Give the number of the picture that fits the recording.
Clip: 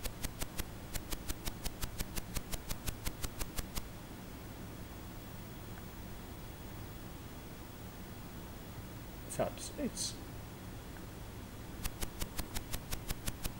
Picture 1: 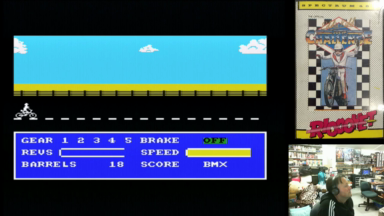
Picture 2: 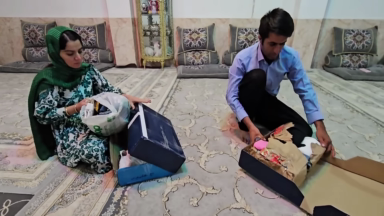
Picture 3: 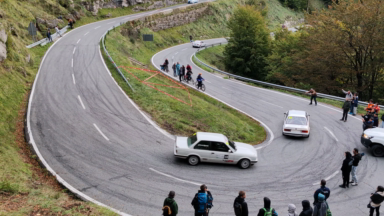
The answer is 1